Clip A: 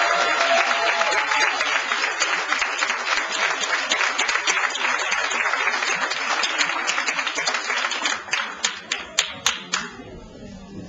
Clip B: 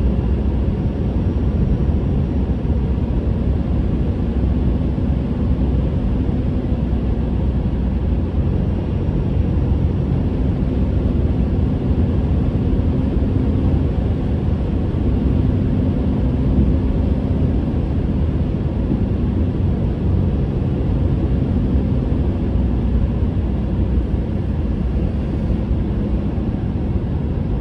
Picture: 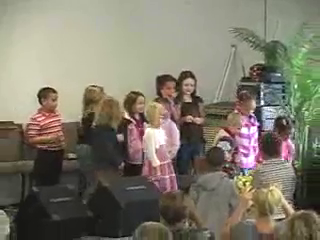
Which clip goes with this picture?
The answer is A